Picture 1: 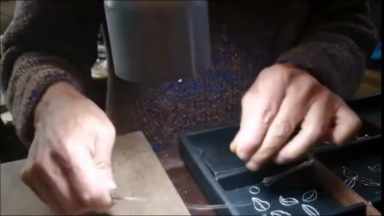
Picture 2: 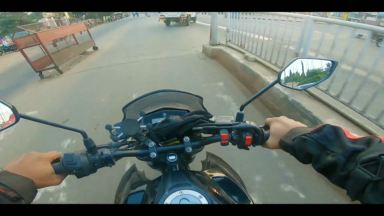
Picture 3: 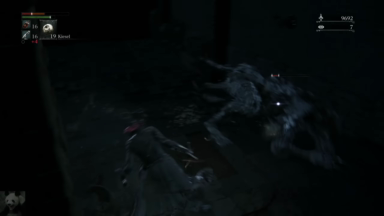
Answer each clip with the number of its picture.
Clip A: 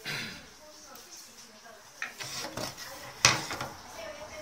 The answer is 1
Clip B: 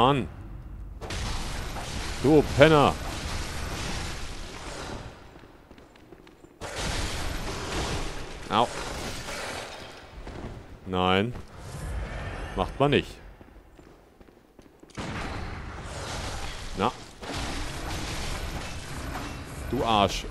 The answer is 3